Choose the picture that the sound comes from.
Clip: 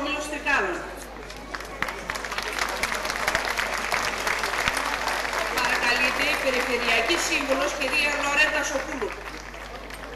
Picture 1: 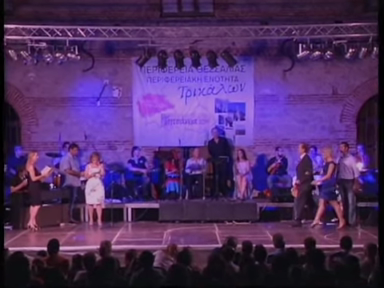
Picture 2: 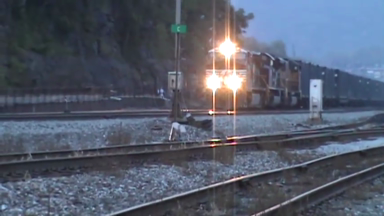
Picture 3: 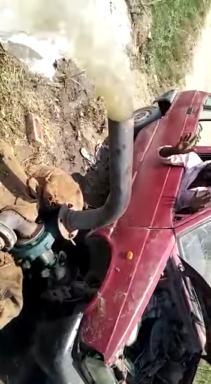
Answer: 1